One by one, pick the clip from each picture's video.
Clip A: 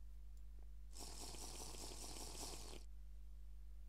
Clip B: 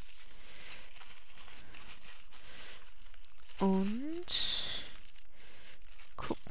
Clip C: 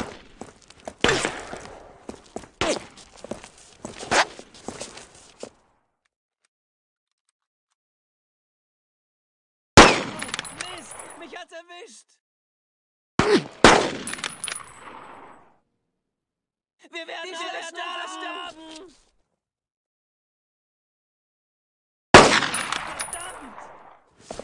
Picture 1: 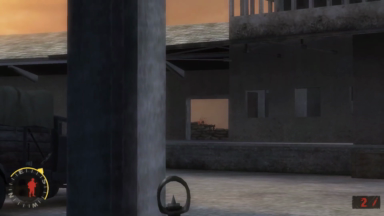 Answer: C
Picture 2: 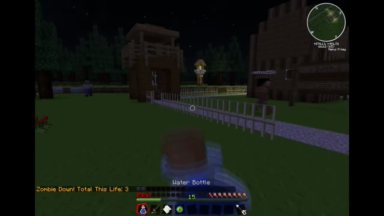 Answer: A